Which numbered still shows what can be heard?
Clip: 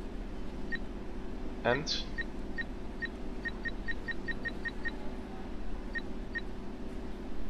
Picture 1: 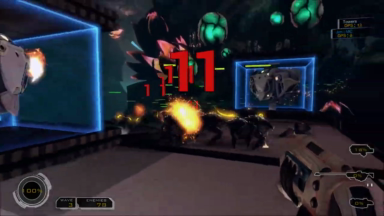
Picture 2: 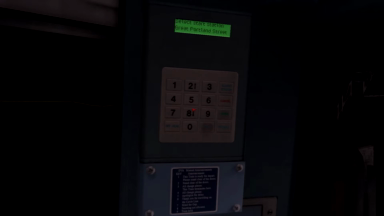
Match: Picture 2